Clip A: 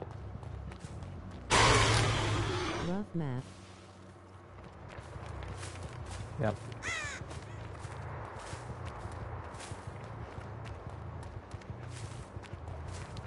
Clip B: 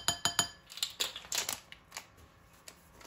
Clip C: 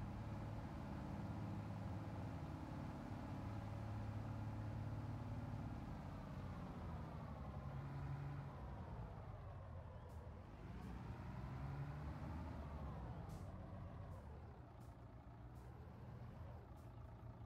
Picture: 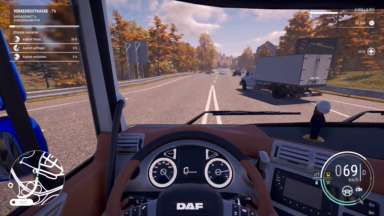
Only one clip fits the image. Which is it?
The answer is C